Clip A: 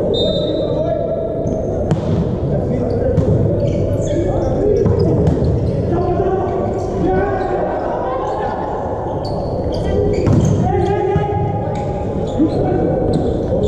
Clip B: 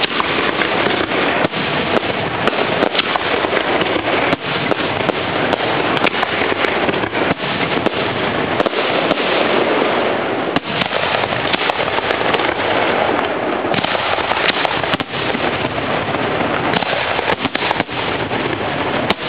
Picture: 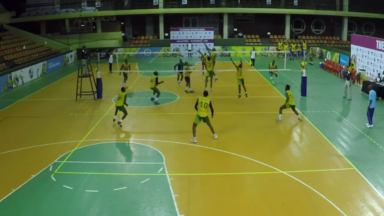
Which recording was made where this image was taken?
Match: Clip A